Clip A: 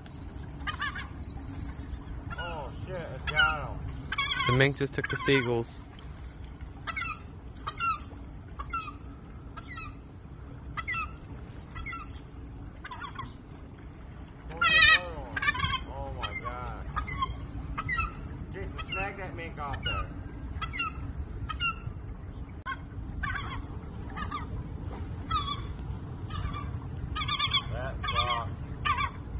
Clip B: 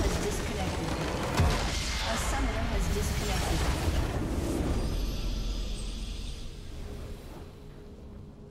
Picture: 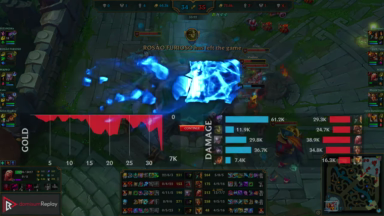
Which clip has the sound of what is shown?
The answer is B